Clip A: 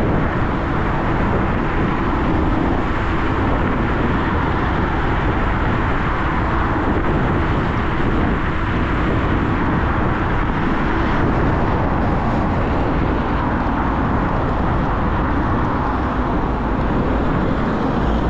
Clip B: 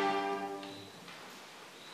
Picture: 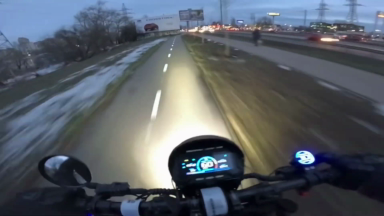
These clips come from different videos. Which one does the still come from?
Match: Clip A